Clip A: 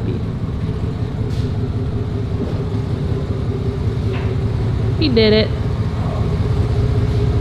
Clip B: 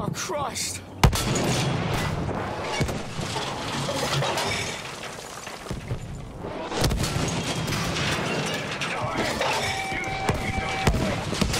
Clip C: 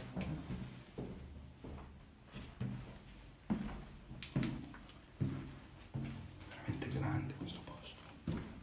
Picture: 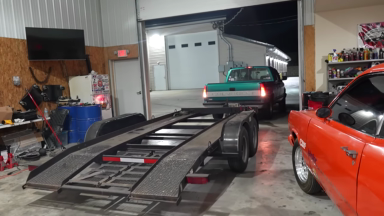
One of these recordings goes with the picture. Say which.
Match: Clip A